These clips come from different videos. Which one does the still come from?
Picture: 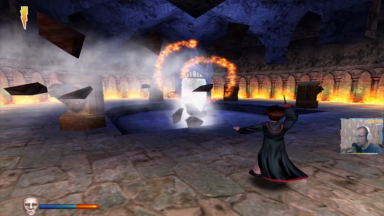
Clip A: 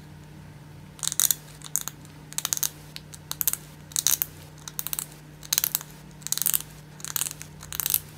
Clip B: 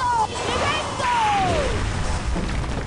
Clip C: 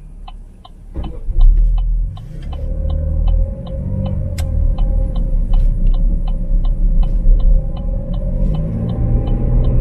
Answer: B